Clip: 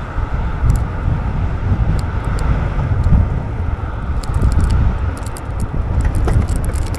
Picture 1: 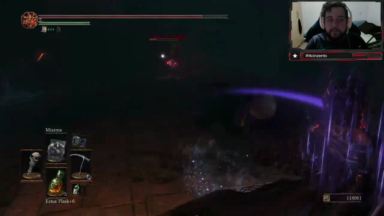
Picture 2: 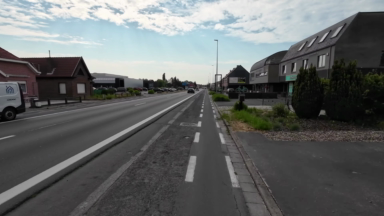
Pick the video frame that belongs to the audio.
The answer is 2